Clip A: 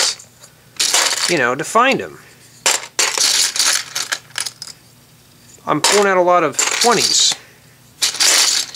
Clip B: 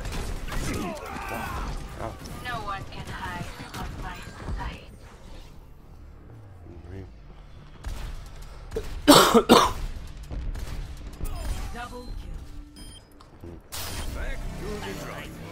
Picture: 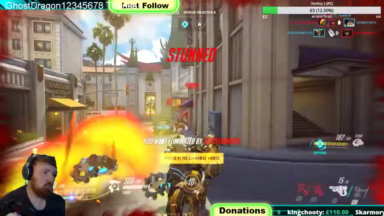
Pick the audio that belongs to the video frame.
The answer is B